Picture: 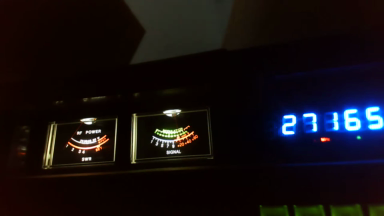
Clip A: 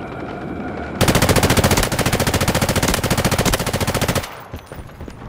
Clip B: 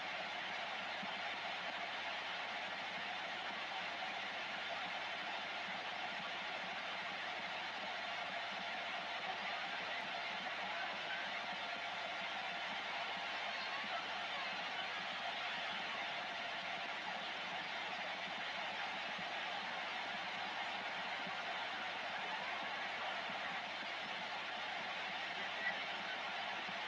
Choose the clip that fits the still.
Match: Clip B